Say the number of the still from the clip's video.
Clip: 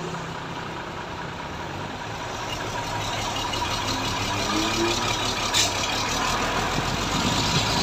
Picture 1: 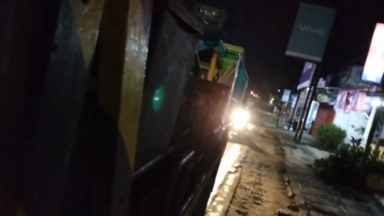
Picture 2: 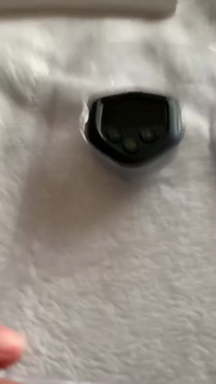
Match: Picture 1